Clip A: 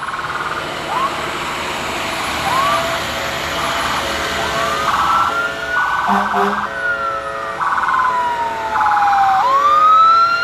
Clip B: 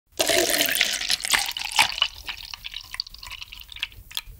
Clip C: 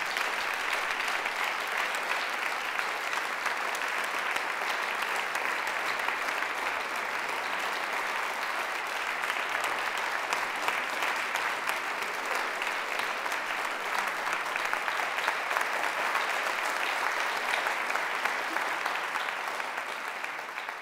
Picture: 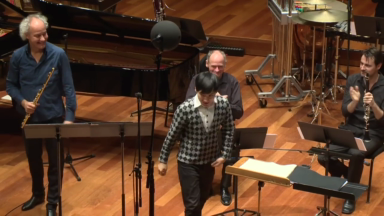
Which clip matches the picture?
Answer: C